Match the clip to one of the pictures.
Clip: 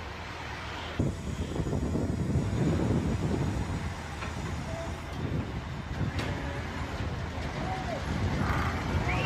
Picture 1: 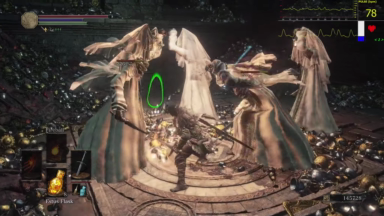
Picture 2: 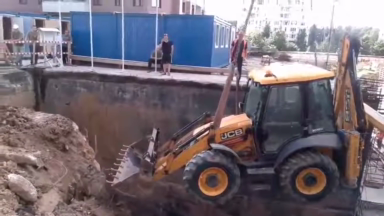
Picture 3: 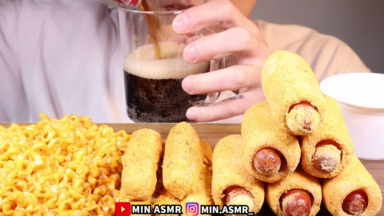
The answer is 2